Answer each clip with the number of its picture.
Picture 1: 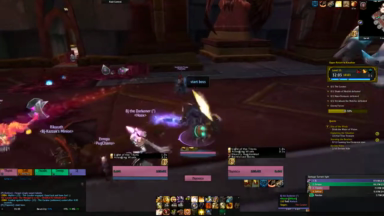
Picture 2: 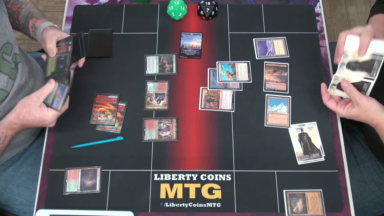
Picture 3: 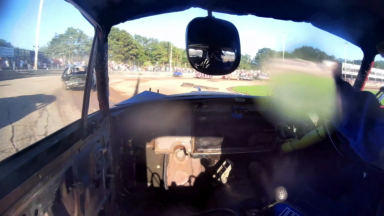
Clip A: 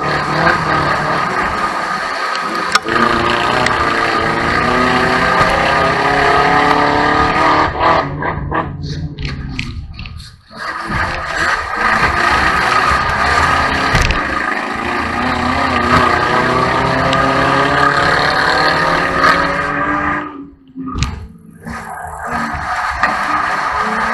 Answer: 3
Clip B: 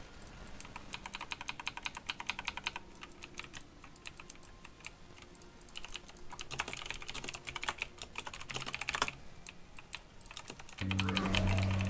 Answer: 1